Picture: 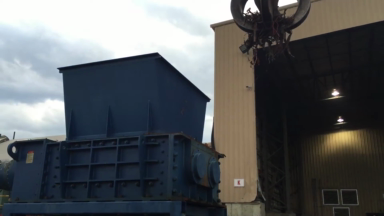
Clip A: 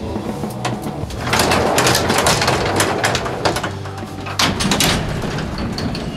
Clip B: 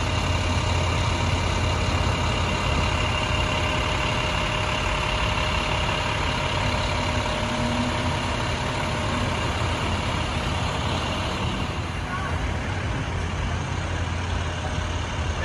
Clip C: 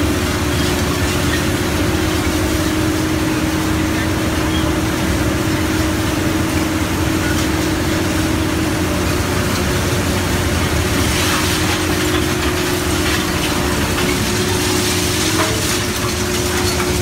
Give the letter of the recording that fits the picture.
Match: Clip C